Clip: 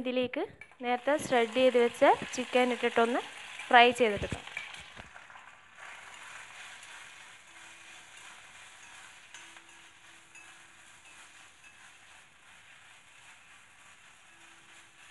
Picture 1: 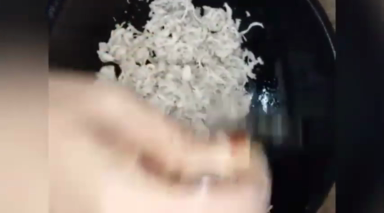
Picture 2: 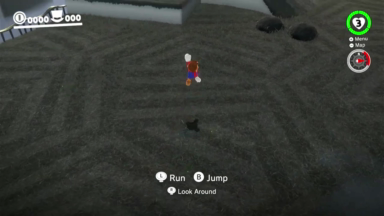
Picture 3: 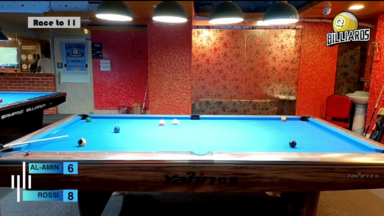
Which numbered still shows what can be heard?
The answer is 1